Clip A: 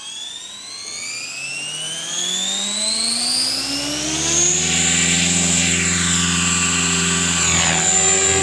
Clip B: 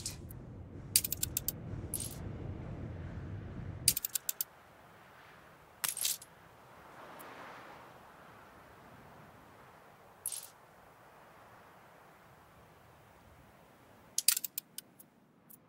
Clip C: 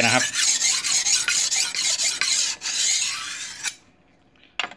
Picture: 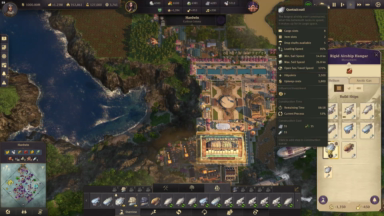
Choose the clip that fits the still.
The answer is B